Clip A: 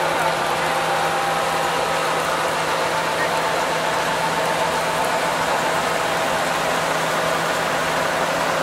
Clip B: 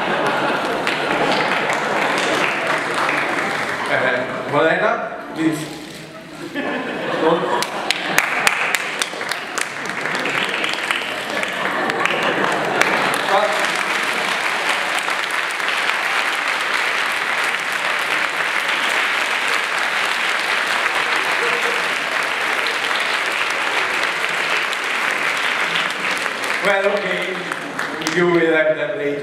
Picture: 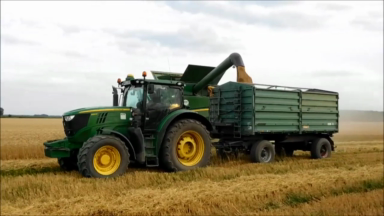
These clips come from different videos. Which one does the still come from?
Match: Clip A